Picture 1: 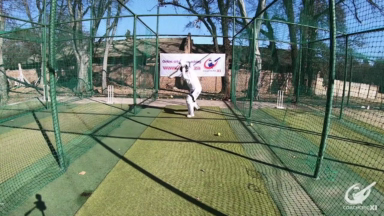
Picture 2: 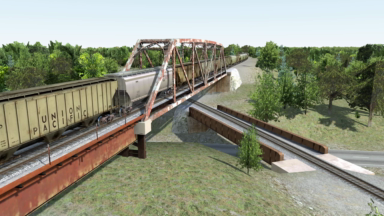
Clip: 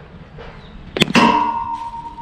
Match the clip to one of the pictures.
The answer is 1